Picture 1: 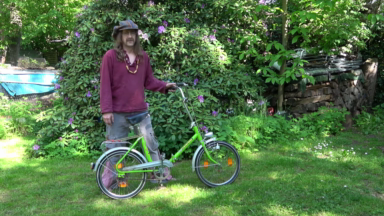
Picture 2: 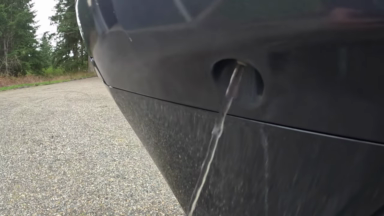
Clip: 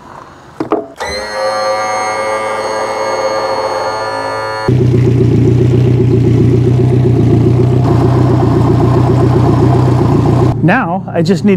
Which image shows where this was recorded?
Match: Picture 2